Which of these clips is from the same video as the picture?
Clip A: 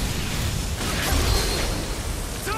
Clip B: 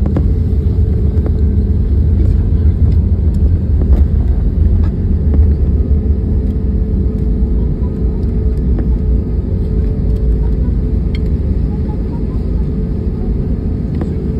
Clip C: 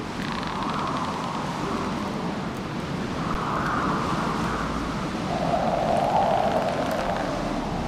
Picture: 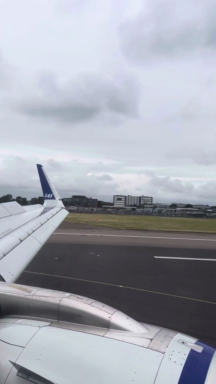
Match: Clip B